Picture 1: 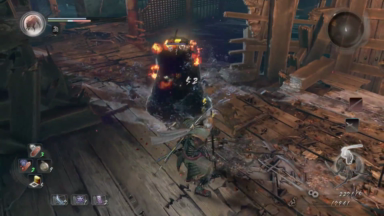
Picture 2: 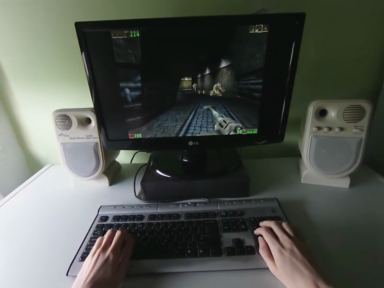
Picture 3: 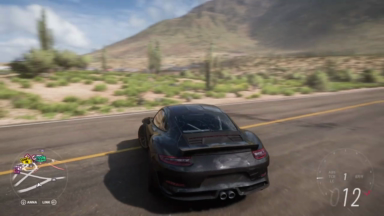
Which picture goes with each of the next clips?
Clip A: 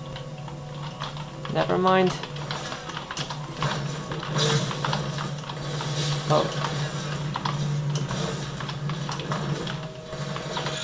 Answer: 2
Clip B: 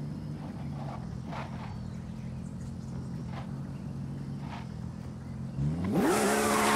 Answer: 3